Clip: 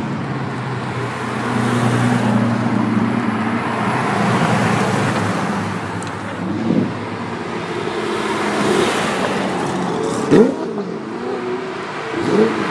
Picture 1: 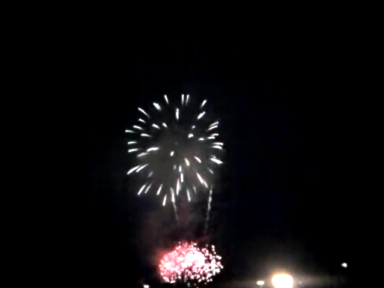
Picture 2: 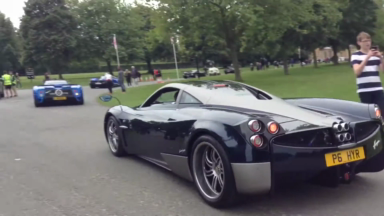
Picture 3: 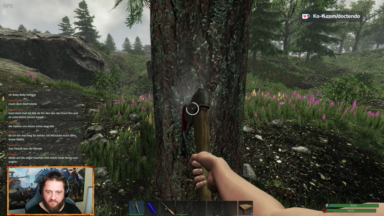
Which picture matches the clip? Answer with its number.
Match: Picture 2